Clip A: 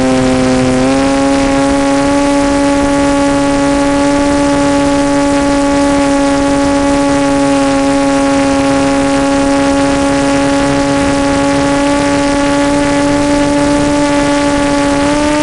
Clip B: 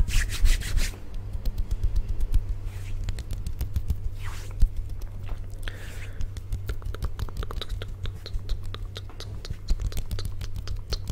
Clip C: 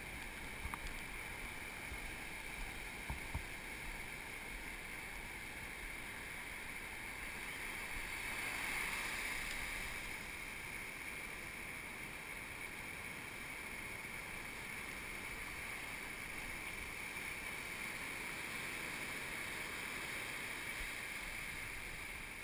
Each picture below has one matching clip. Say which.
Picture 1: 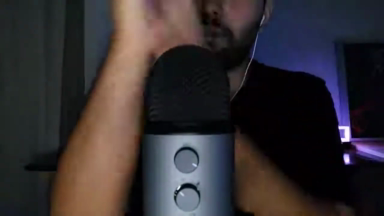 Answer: B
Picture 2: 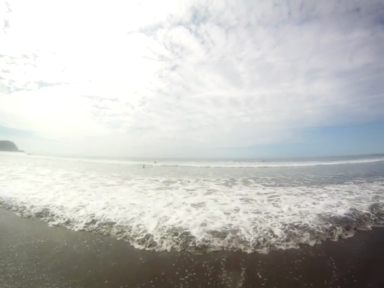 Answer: C